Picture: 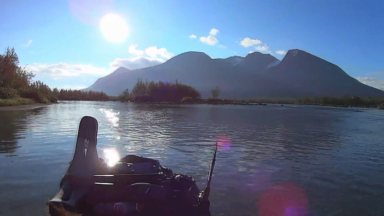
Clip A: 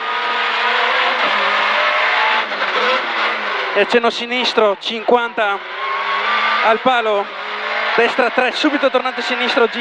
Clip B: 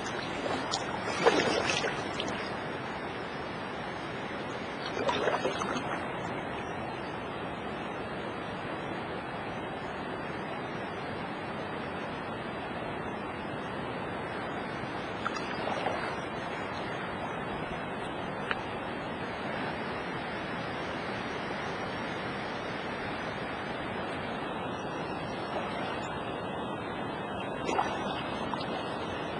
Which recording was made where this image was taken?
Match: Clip B